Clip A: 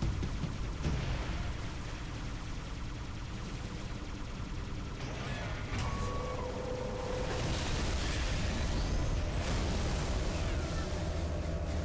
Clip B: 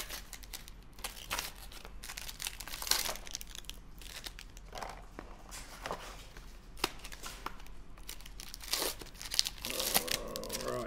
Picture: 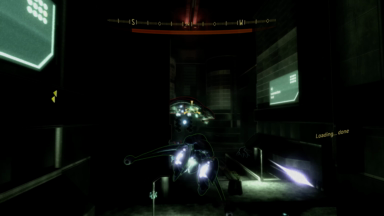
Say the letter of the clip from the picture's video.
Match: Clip A